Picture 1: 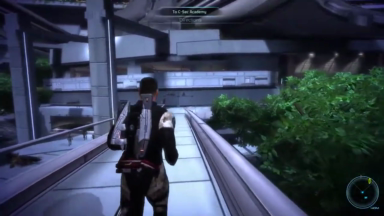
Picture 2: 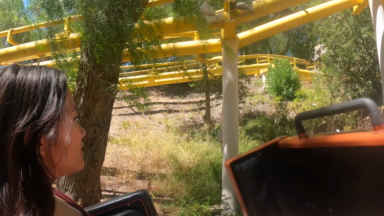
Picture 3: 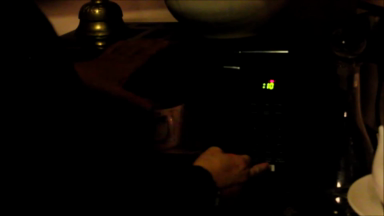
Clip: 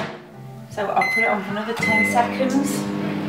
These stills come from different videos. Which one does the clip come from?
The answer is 3